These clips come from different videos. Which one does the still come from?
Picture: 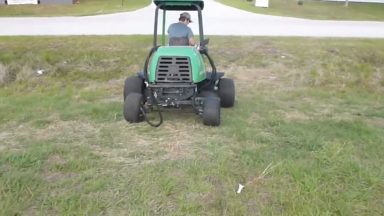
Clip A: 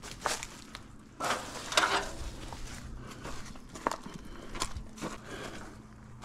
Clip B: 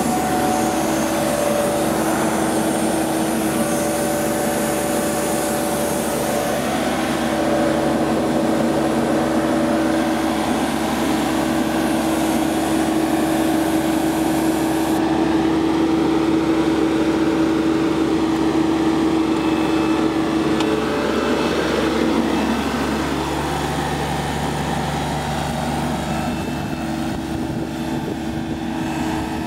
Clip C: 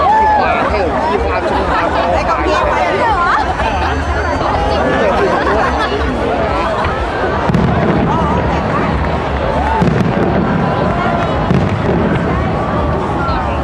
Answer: B